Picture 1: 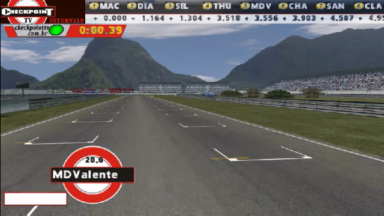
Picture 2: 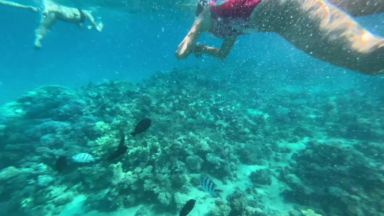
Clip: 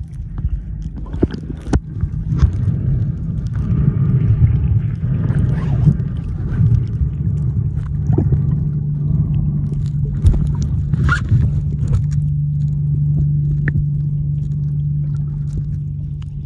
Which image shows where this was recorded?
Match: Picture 2